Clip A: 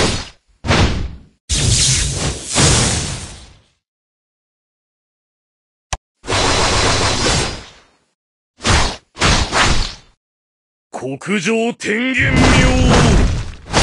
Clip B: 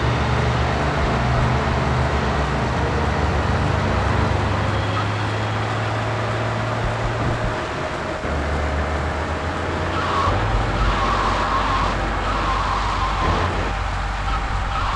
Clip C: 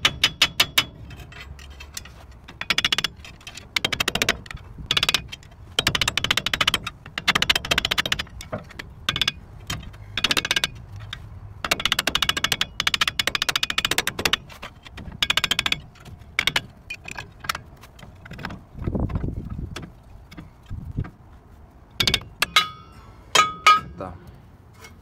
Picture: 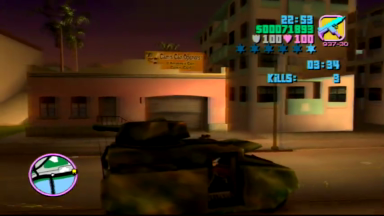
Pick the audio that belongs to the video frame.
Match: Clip B